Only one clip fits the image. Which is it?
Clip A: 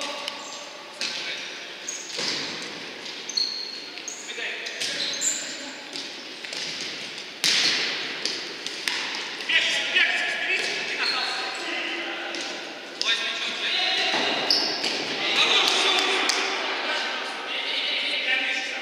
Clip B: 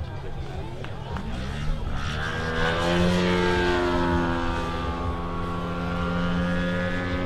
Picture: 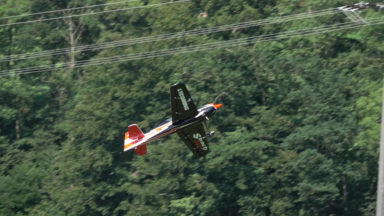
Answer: B